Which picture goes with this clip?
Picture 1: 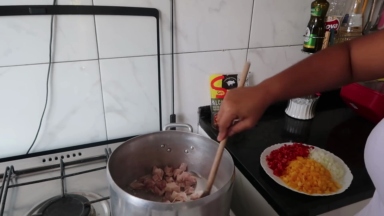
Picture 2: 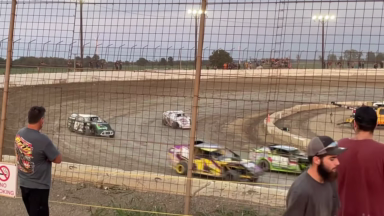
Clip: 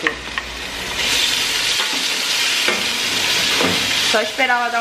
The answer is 1